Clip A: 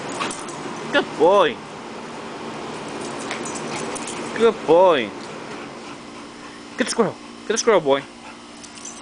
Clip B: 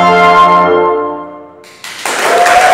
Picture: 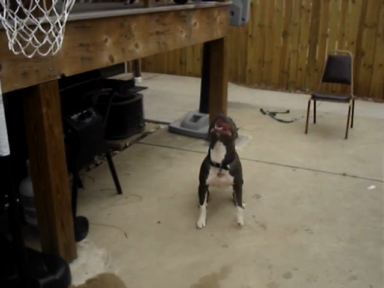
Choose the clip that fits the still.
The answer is A